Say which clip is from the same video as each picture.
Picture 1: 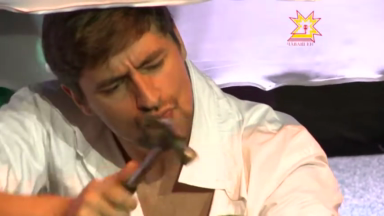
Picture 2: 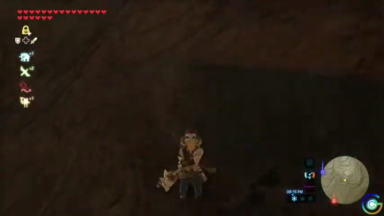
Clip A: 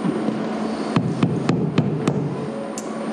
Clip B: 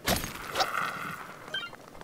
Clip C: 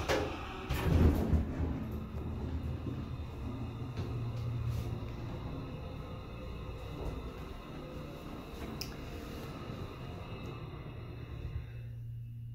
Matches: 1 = A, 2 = B